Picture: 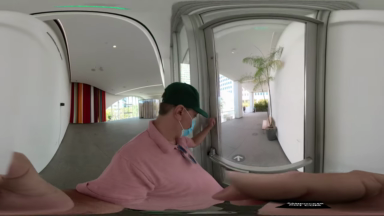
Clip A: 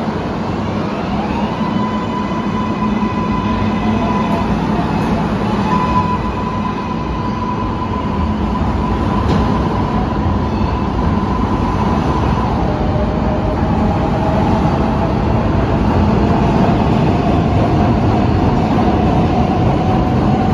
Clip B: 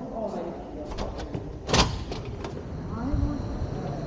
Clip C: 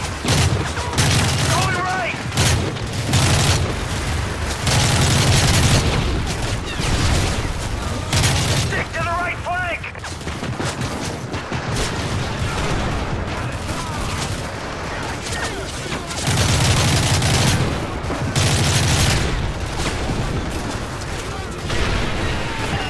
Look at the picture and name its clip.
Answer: B